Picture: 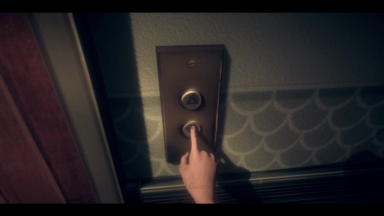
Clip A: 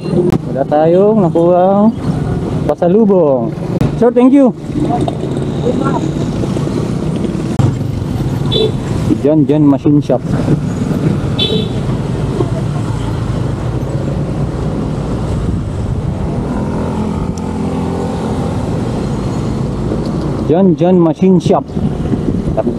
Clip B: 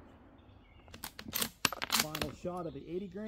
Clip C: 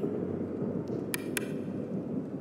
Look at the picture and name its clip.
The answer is C